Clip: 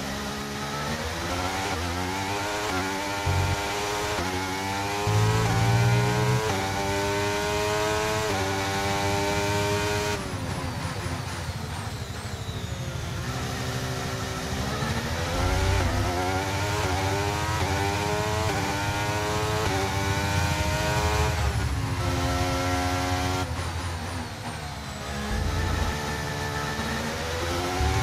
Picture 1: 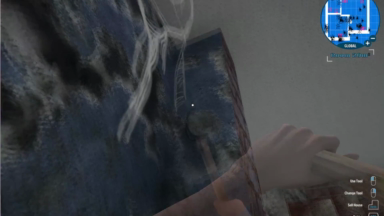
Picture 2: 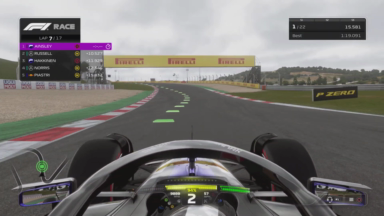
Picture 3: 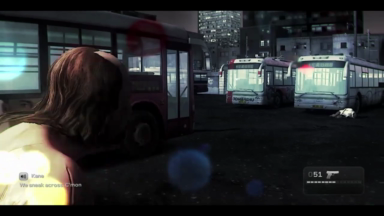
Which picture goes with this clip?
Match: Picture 2